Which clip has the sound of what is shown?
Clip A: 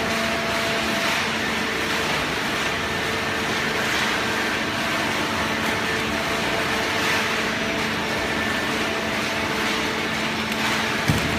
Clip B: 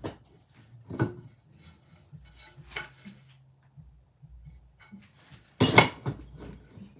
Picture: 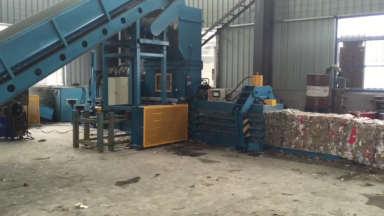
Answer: A